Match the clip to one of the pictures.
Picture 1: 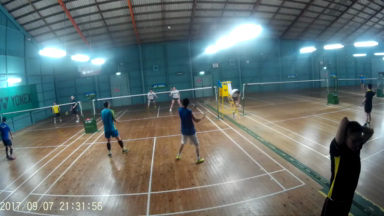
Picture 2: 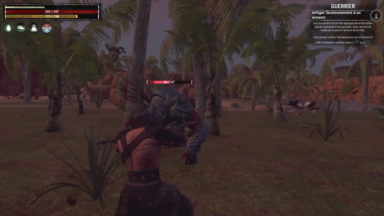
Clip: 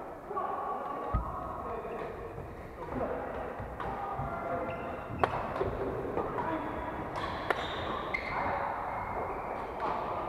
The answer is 1